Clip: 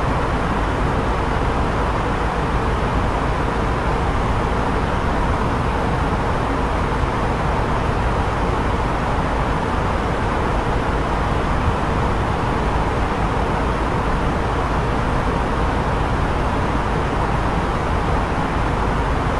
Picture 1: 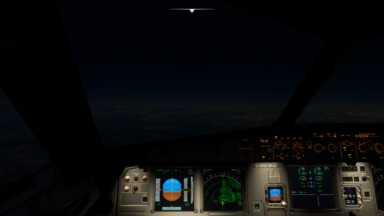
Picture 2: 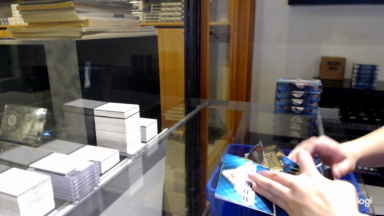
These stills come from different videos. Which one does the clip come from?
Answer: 1